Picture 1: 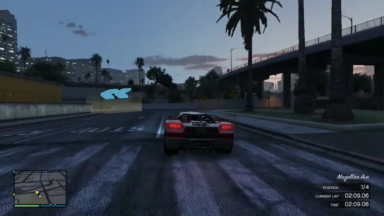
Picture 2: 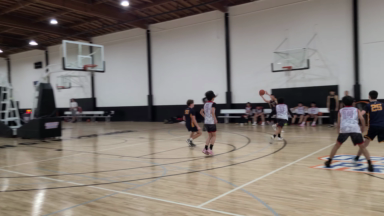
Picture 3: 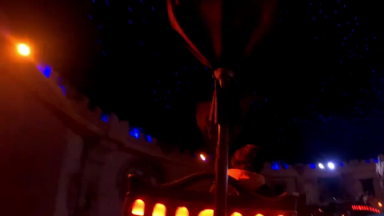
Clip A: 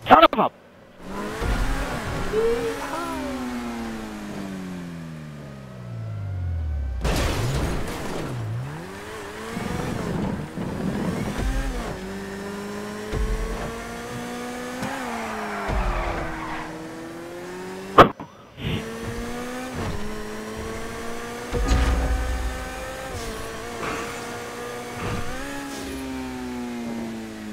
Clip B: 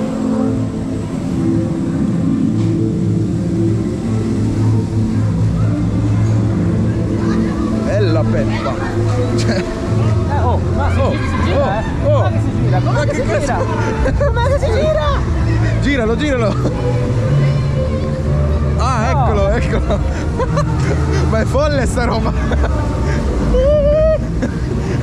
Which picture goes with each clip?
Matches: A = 1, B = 3